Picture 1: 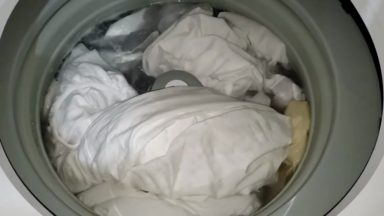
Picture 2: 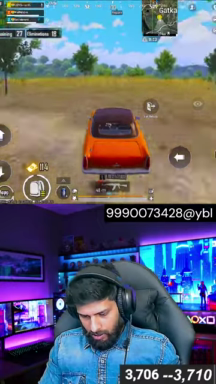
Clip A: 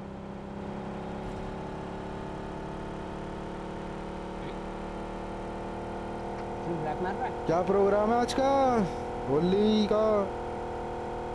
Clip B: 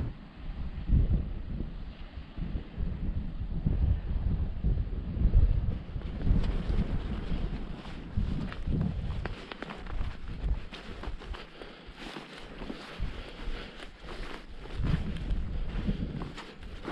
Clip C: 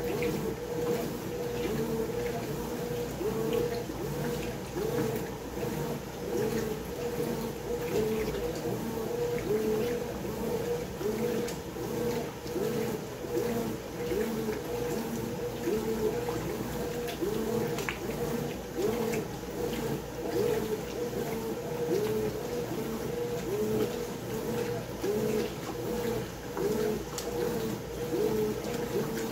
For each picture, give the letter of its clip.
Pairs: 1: C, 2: A